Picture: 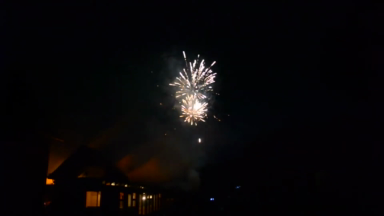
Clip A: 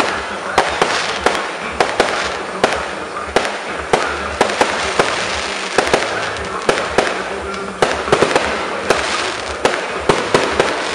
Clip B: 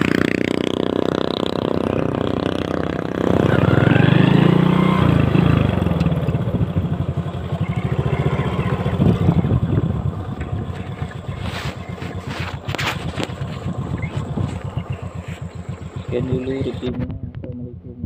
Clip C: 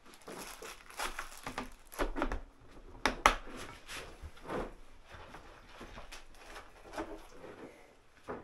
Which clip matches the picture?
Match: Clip A